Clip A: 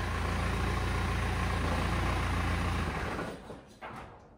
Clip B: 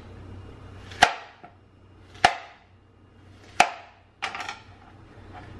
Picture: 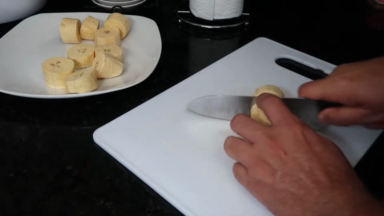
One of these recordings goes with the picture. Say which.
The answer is B